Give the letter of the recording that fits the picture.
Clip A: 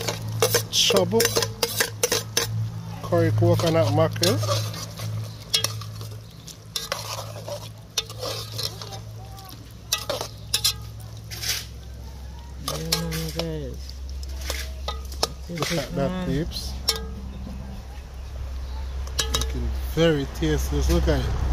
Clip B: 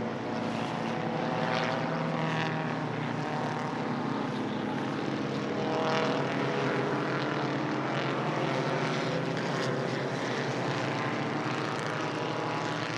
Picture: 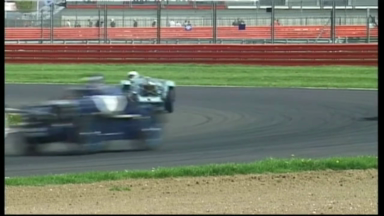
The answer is B